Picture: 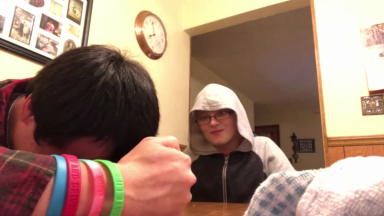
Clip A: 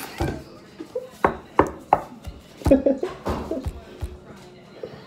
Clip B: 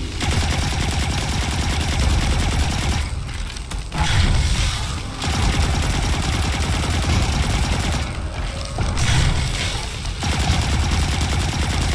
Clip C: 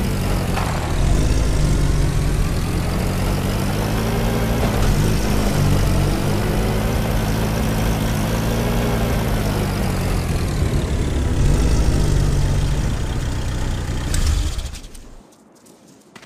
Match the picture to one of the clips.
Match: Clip A